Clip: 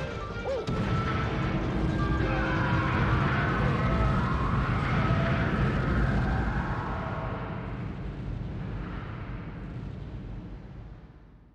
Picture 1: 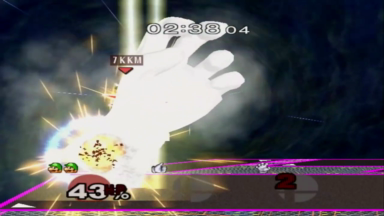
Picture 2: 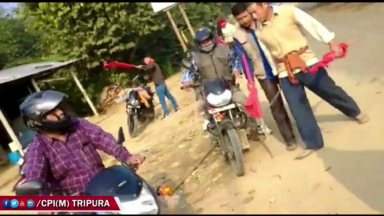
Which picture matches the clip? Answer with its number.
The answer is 1